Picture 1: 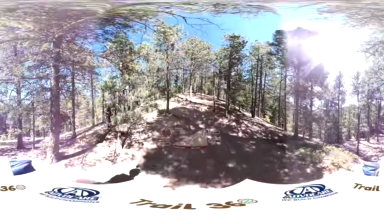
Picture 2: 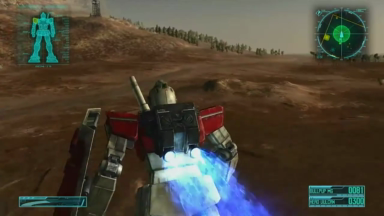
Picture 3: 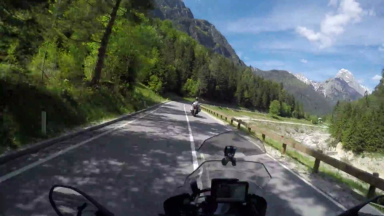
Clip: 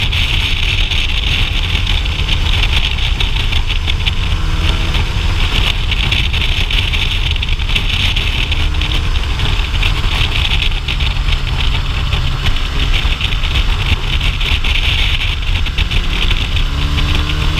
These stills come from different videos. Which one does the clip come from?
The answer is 3